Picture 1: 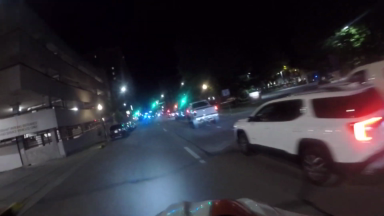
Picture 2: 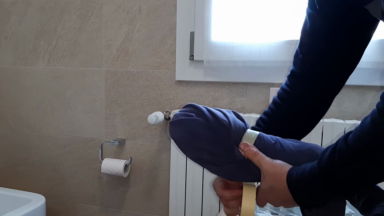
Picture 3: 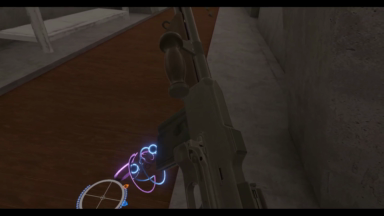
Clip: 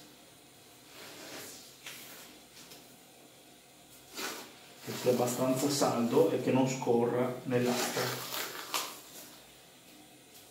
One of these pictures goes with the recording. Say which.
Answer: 2